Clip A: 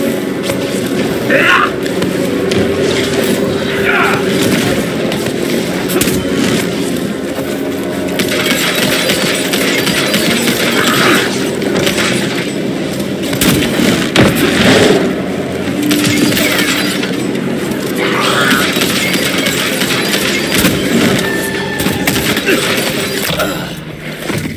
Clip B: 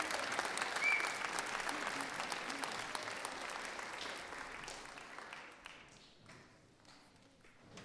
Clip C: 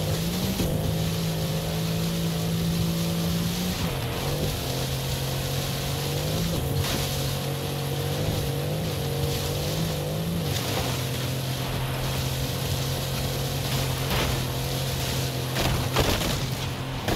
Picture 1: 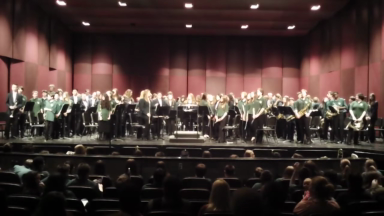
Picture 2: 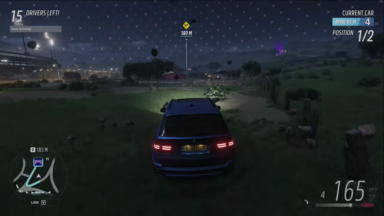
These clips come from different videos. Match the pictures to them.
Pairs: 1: B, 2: C